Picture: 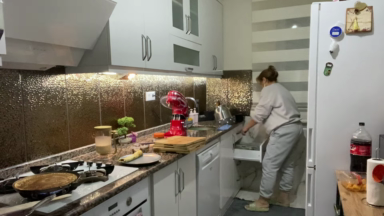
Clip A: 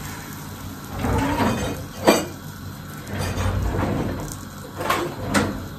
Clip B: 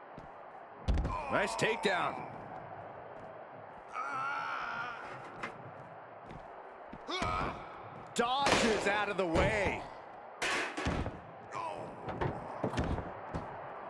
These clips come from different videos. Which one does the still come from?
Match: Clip A